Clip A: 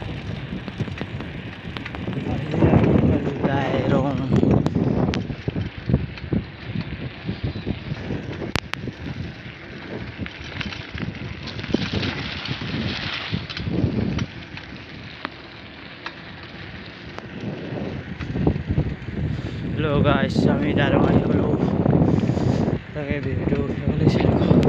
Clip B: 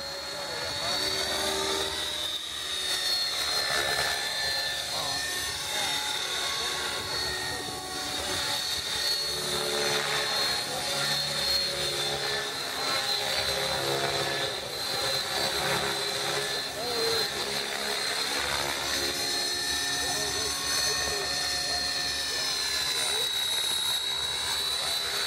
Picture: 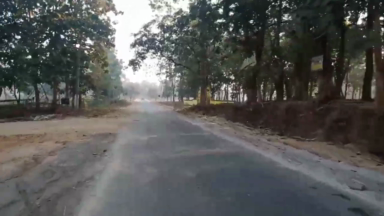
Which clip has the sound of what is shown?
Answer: A